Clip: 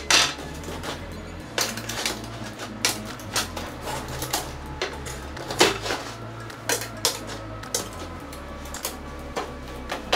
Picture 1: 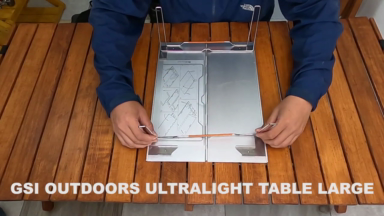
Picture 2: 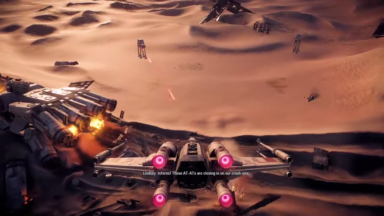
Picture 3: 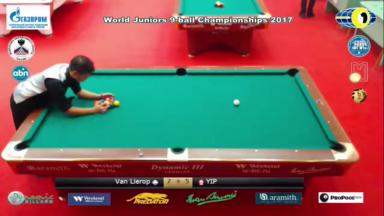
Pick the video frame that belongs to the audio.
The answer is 1